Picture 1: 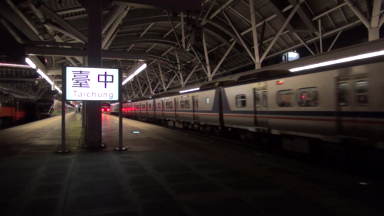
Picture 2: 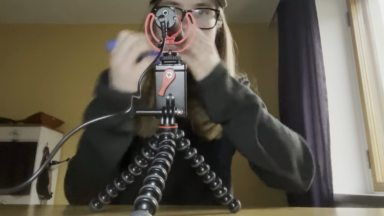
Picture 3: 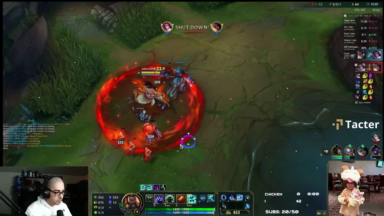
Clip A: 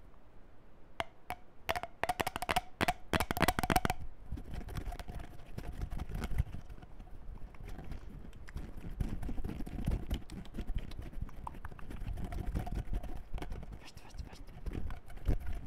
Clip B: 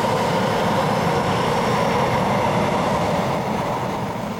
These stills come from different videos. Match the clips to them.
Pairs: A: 2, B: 1